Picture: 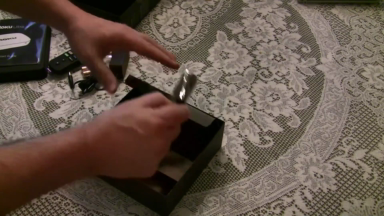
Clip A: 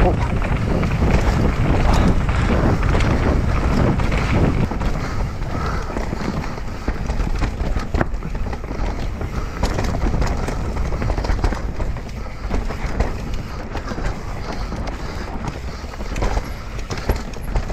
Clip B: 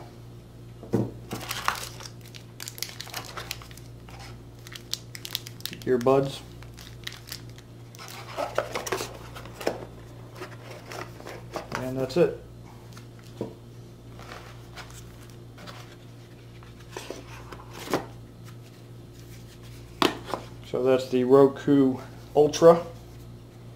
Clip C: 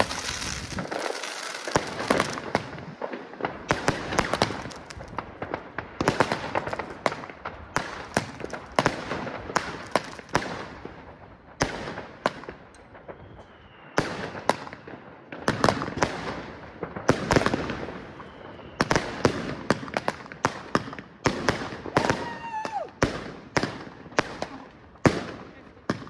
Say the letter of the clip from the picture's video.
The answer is B